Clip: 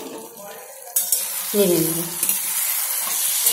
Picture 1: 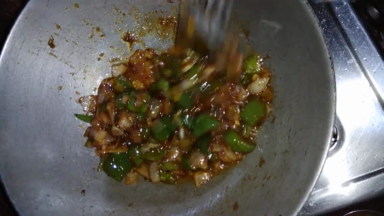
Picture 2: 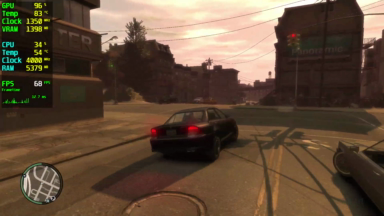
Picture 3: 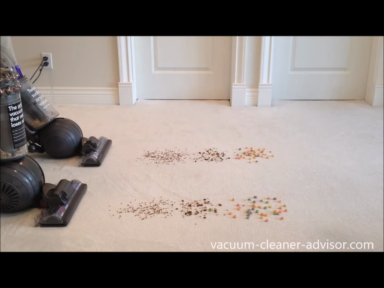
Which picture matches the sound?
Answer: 1